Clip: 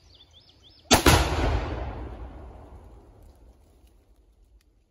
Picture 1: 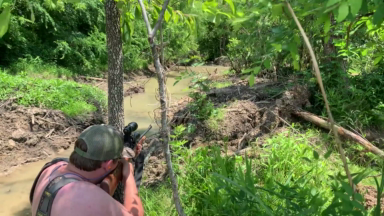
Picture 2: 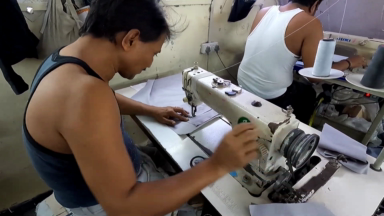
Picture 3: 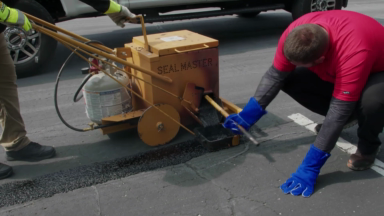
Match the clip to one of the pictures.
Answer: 1